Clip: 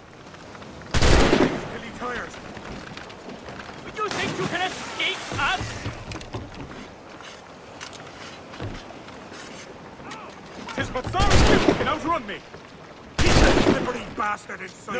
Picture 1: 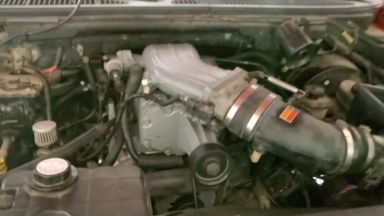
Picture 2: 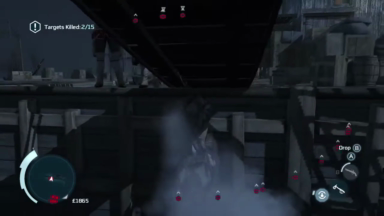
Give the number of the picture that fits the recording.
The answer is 2